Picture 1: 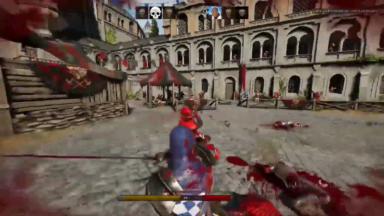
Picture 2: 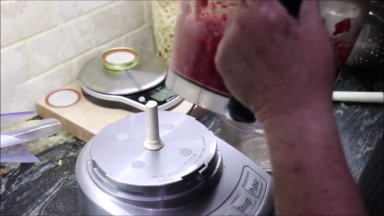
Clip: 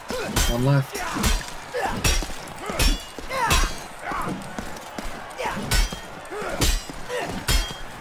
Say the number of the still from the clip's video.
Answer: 1